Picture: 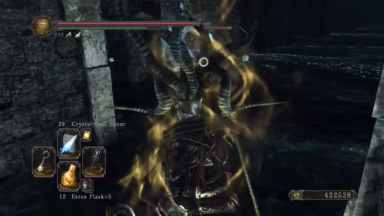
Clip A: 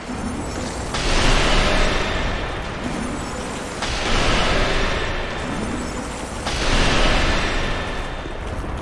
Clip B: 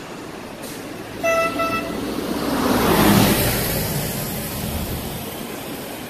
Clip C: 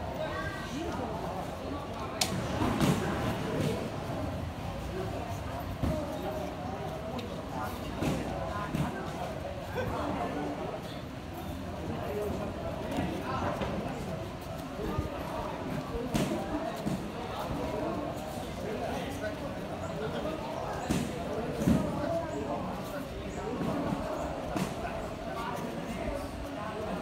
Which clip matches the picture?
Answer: A